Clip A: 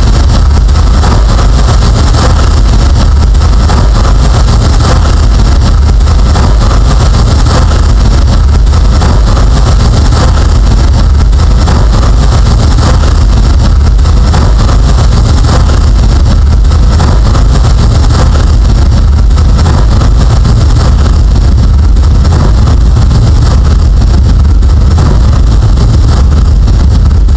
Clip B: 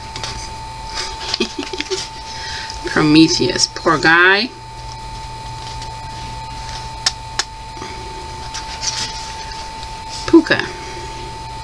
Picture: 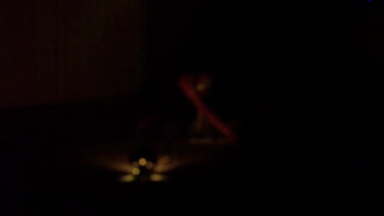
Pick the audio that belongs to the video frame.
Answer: A